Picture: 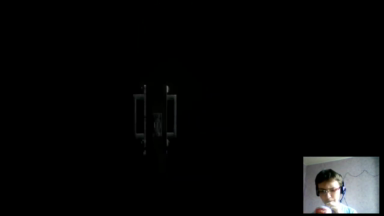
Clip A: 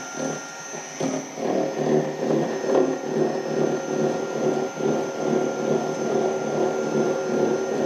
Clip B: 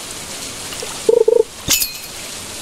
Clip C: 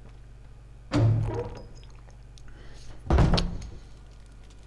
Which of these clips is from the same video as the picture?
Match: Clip C